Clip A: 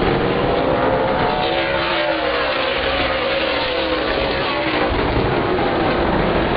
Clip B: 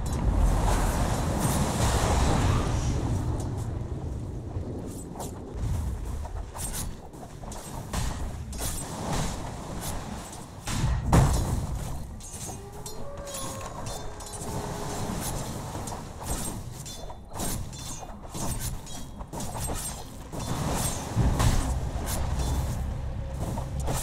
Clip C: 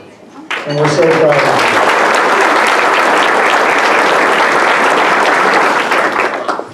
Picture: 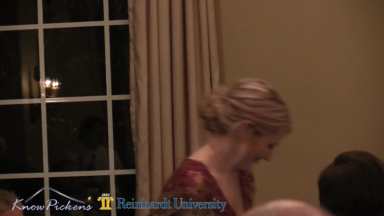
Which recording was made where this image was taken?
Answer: C